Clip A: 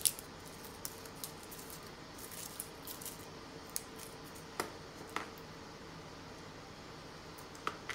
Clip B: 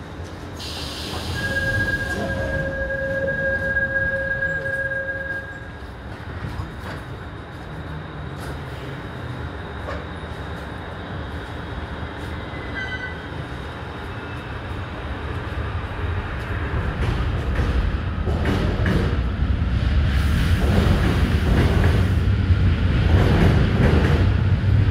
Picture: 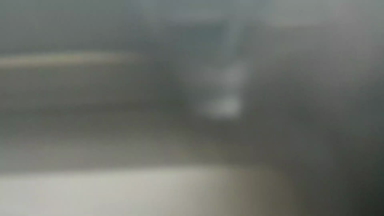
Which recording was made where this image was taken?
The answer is B